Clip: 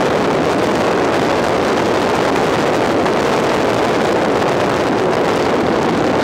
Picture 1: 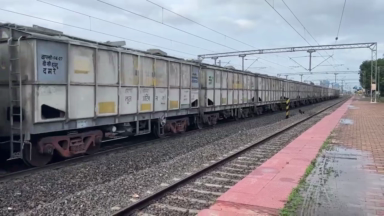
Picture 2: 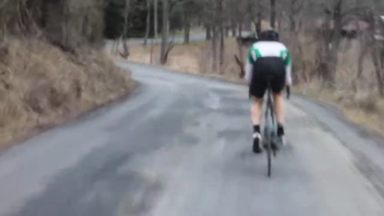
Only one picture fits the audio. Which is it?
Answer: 2